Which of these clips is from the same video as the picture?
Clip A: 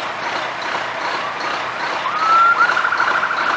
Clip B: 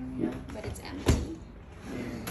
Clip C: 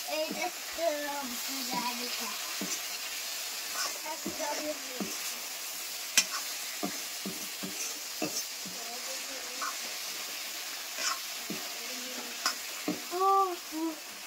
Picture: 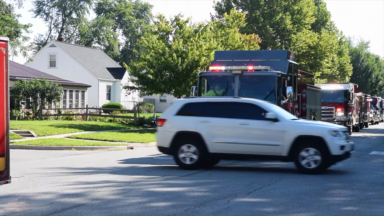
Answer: A